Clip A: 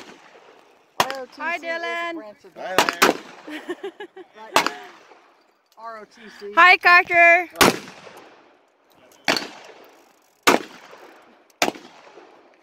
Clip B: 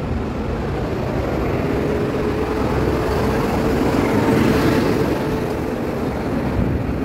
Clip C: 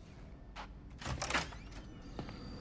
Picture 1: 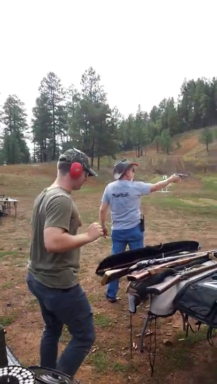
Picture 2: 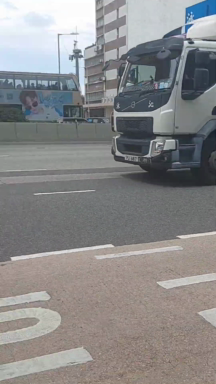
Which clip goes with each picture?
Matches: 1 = A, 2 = B